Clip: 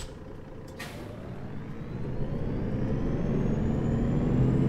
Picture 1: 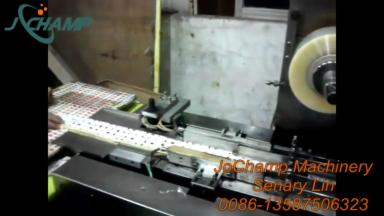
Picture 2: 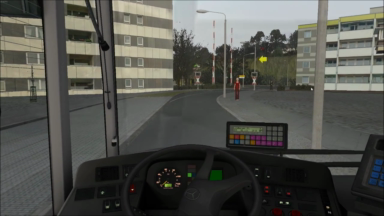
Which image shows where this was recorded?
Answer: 2